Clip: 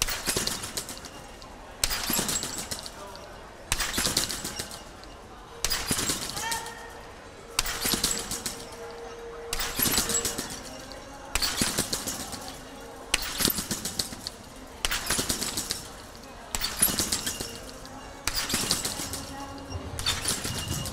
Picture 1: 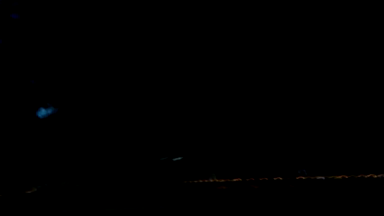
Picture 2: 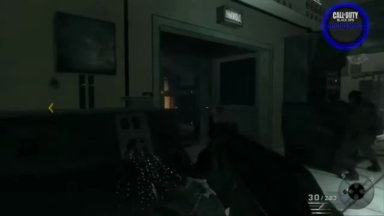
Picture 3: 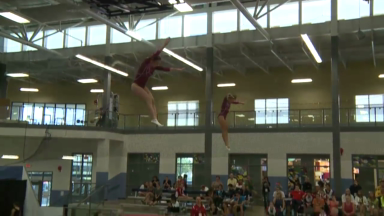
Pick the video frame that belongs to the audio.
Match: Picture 3